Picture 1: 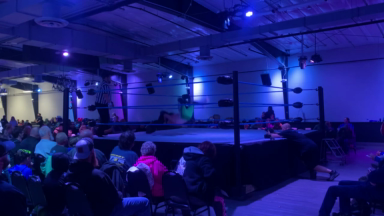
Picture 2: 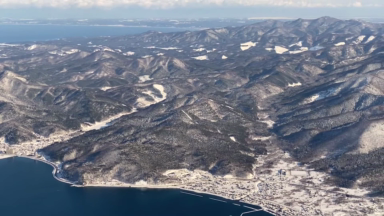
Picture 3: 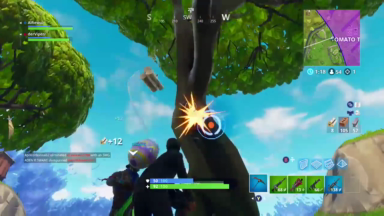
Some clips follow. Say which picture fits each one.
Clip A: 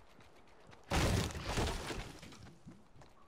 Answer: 3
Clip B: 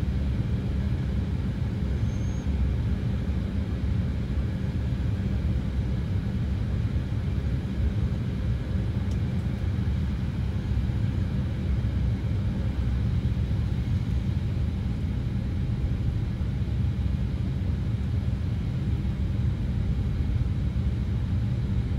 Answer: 2